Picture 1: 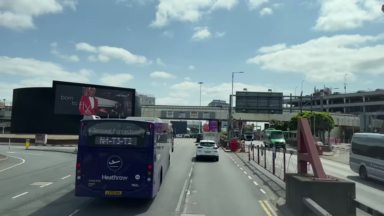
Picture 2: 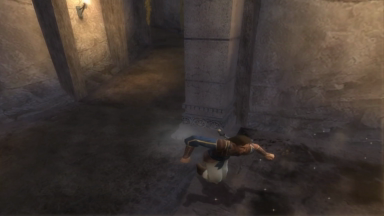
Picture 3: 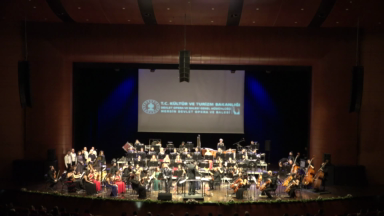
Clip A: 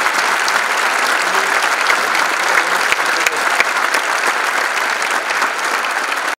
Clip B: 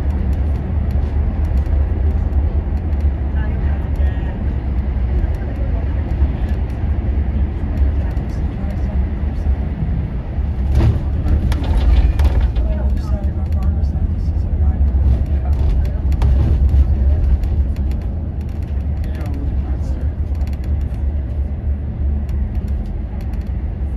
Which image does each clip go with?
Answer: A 3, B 1